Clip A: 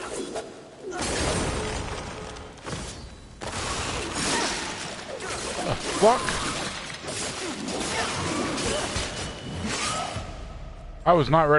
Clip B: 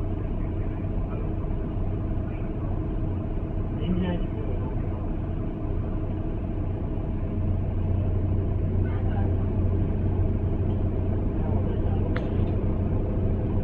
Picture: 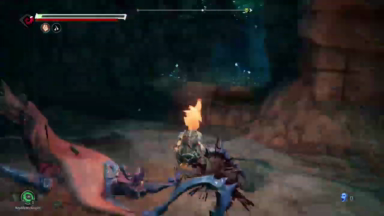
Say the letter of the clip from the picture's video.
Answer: A